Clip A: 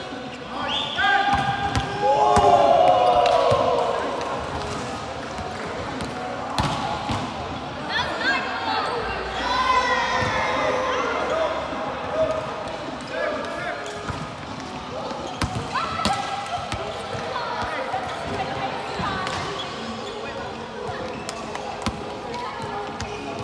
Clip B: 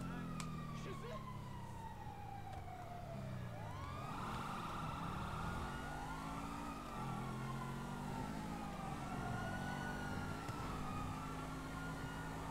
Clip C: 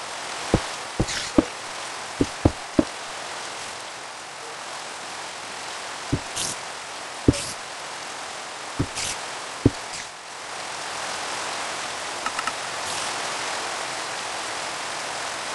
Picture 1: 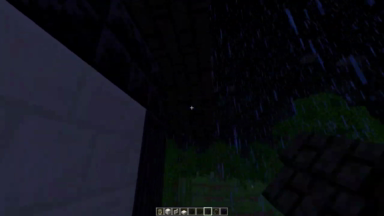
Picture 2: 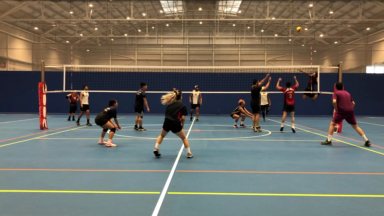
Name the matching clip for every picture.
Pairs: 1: C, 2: A